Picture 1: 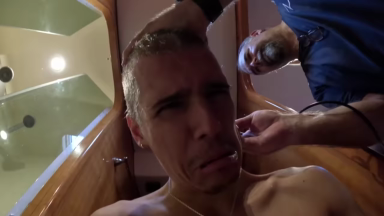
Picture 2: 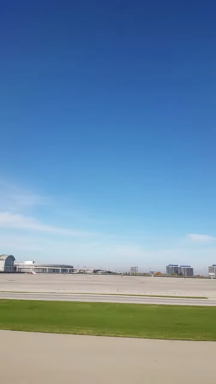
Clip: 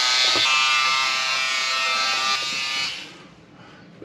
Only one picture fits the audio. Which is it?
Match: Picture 1